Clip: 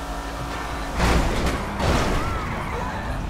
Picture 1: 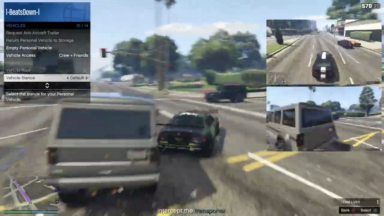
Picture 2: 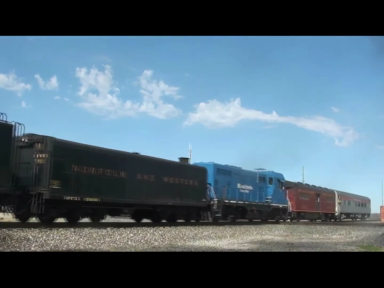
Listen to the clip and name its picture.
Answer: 1